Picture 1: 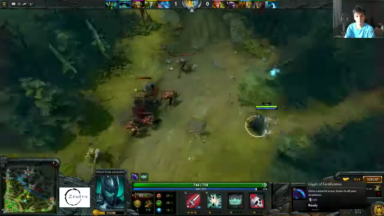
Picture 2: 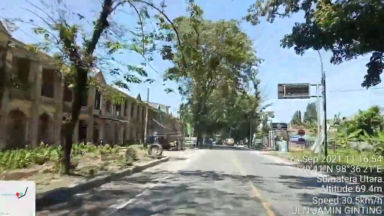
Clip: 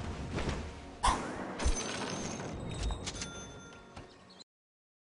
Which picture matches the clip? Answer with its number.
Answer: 1